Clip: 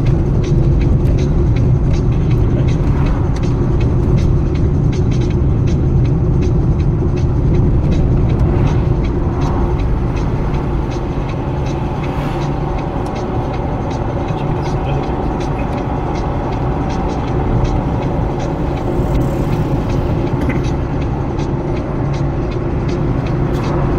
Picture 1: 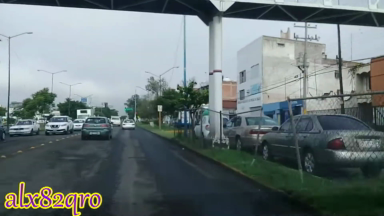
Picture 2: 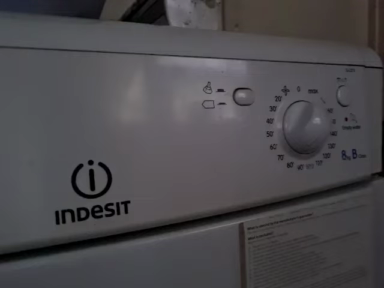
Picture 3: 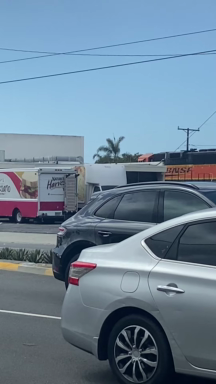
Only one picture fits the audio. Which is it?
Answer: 1